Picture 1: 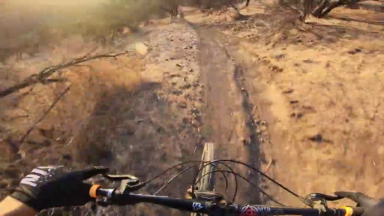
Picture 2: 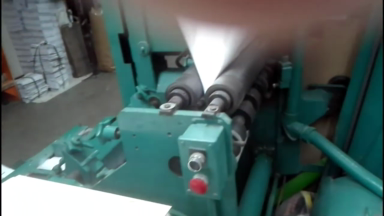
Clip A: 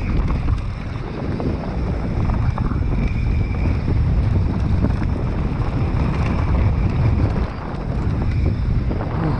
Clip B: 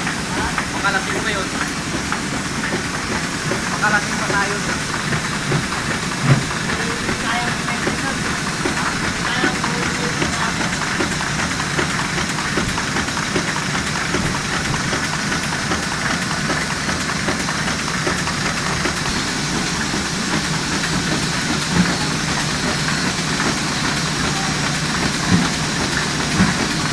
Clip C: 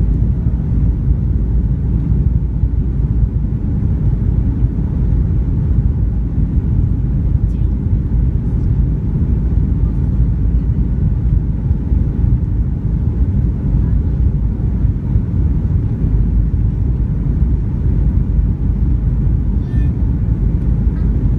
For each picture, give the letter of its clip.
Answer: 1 A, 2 B